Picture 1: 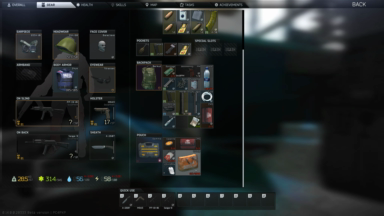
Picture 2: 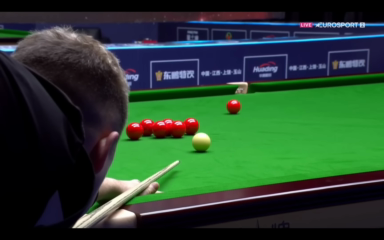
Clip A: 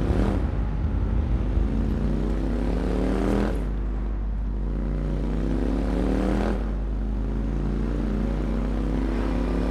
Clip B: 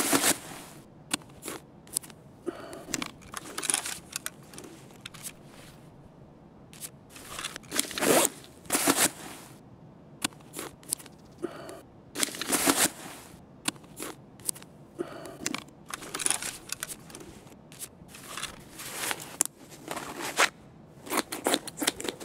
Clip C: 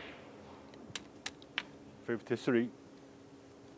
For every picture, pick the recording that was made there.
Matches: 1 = B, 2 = C